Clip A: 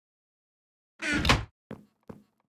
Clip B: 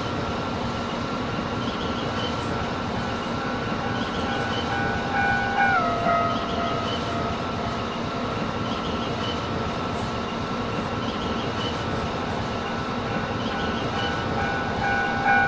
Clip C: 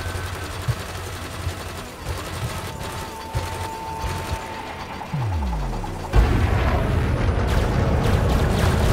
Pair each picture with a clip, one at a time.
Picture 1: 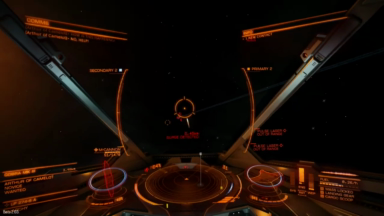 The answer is C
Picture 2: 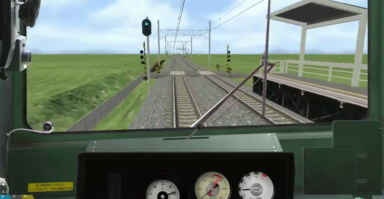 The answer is B